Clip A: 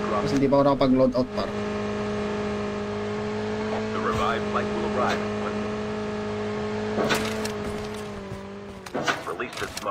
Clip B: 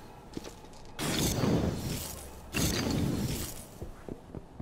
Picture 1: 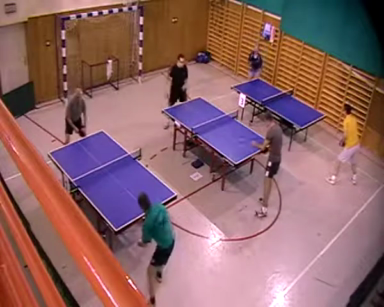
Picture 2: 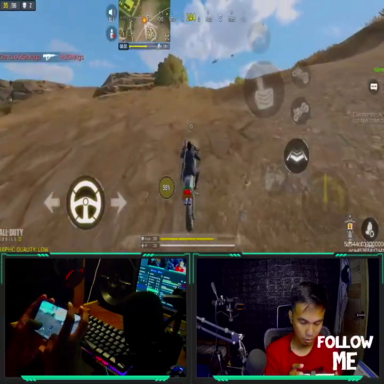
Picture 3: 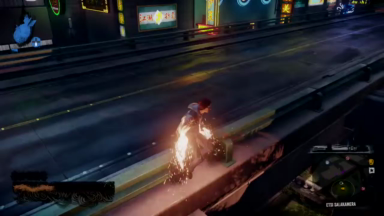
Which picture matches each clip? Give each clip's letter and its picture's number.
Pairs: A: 2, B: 3